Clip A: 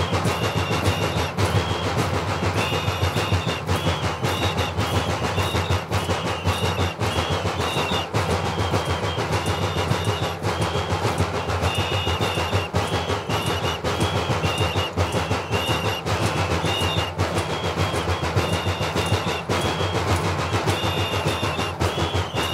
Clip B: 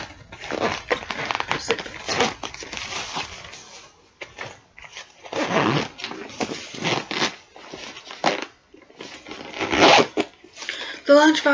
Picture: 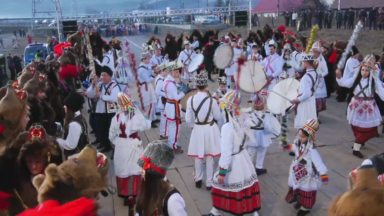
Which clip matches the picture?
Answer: A